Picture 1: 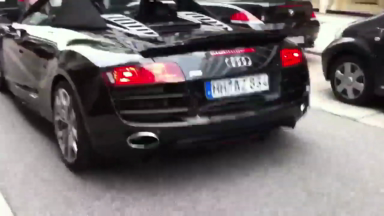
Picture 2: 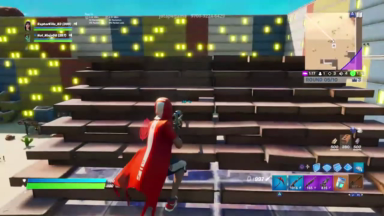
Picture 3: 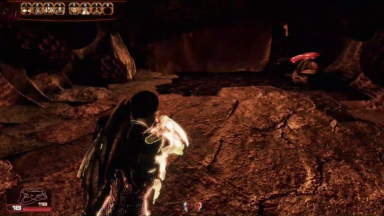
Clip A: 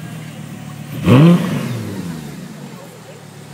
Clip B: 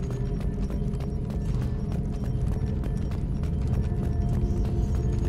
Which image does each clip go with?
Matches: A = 1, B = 3